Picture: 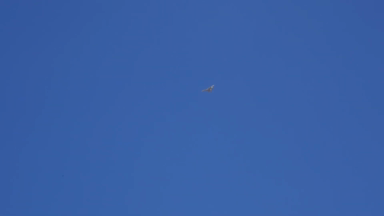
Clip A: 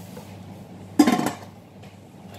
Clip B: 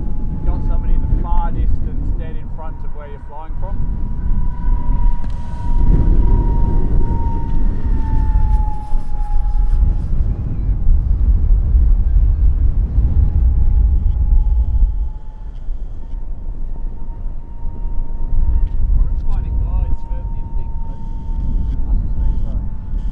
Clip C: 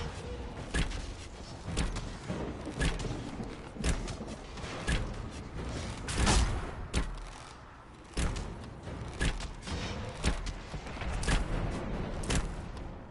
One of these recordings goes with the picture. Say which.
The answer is B